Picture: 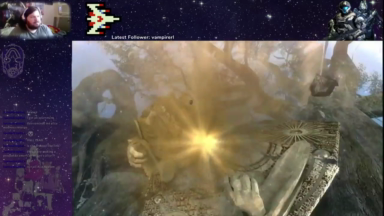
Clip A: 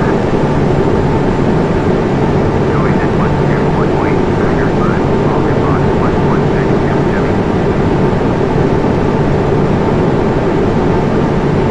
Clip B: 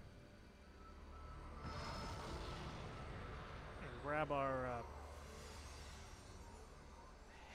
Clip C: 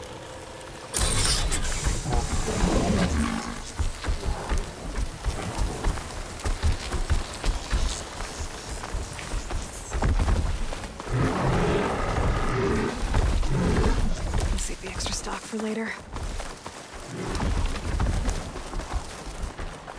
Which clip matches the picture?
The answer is B